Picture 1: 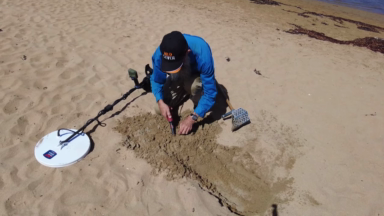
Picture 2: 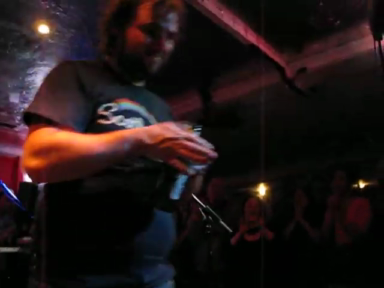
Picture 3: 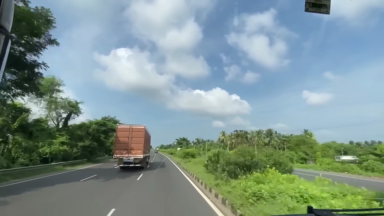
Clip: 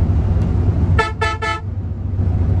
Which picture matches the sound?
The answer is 3